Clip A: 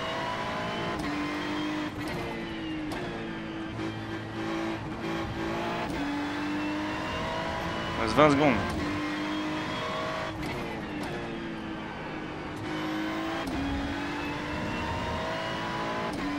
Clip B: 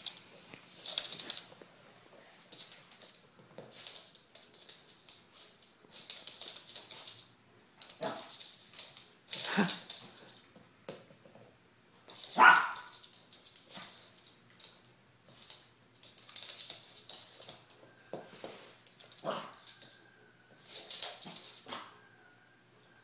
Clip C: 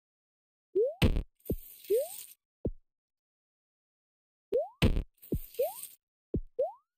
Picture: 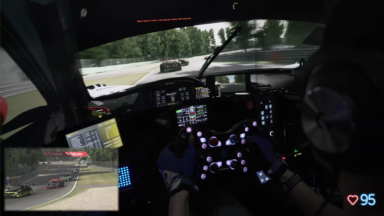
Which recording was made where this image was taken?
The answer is A